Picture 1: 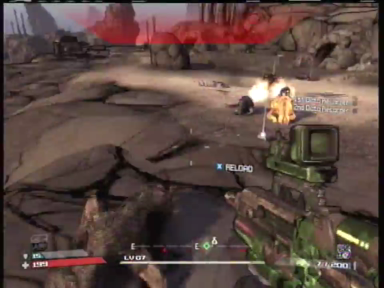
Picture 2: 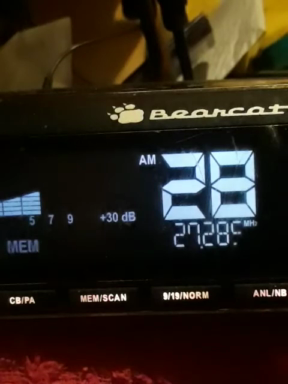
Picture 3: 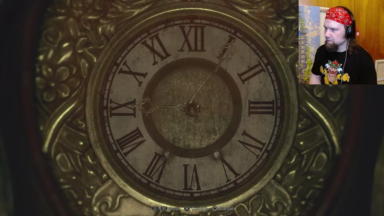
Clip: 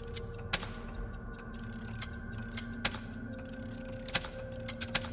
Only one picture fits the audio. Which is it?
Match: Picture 3